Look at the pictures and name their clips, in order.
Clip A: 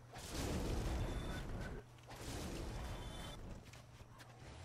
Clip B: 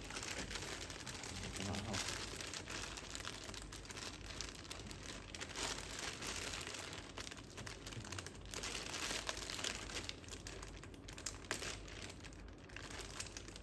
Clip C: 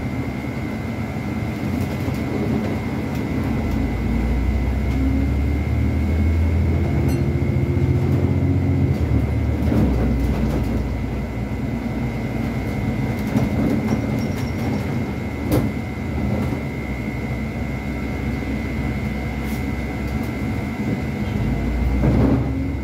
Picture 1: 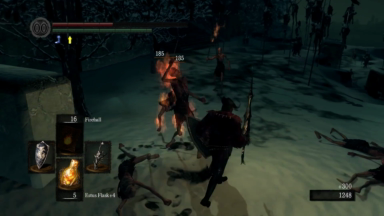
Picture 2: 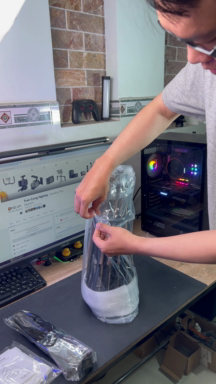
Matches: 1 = A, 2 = B